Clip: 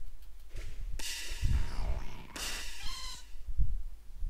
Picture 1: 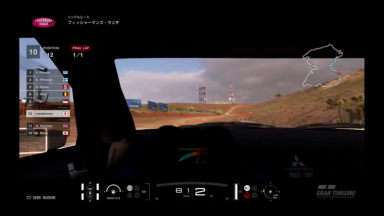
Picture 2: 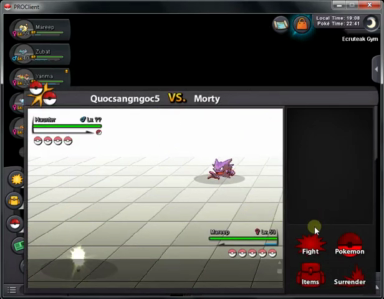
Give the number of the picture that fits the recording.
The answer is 2